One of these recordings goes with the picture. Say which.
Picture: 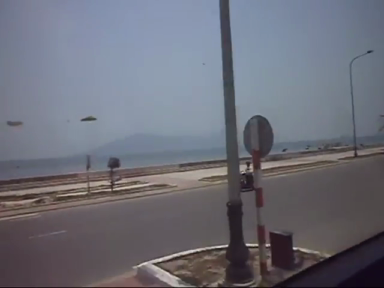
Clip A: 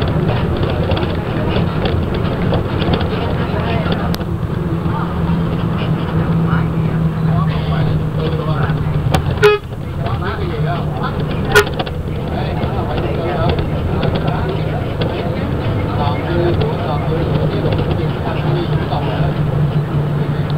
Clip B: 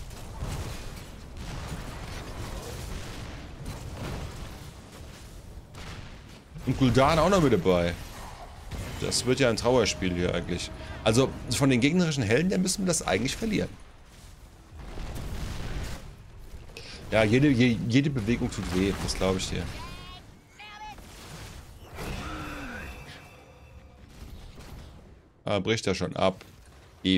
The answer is A